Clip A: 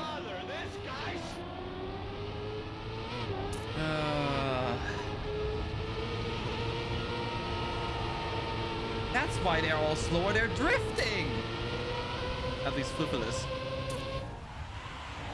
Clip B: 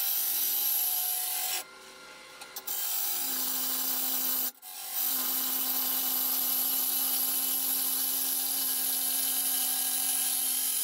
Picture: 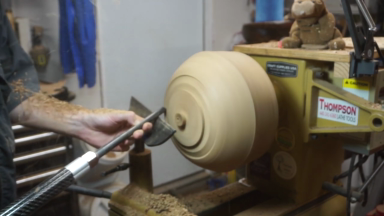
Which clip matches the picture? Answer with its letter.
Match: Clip B